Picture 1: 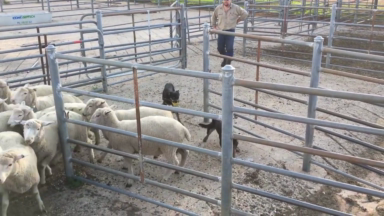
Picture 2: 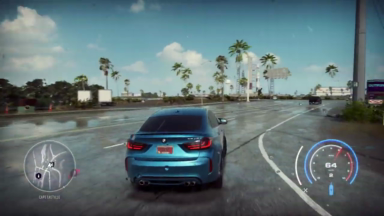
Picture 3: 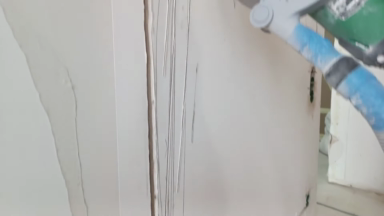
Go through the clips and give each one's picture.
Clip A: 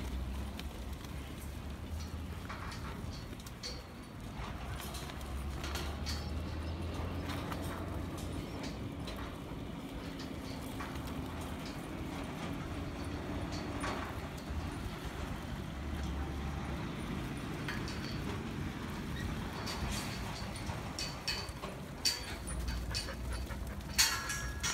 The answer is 1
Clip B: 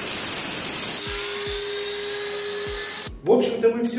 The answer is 3